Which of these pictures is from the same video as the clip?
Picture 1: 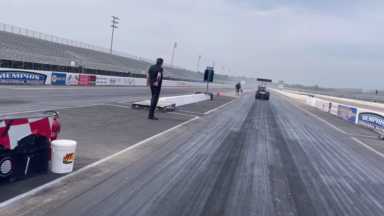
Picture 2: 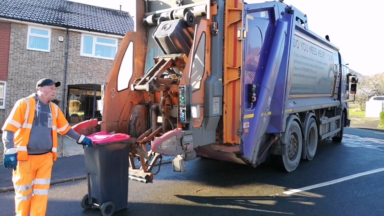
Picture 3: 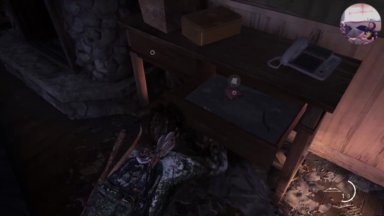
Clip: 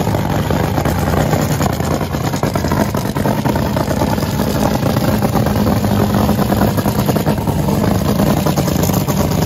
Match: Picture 1